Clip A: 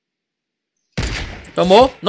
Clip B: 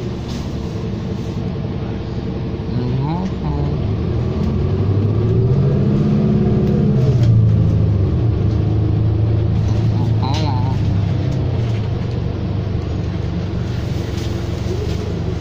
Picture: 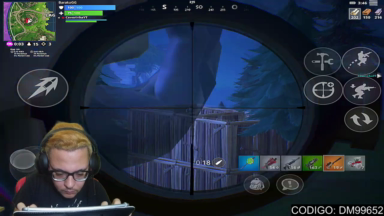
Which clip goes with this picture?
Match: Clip A